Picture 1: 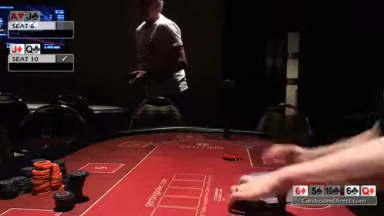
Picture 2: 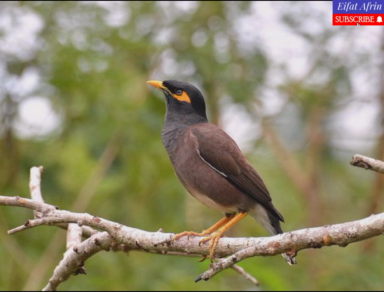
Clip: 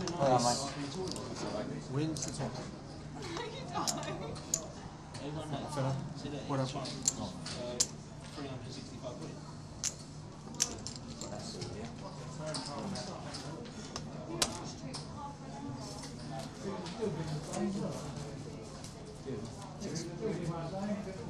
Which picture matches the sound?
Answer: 1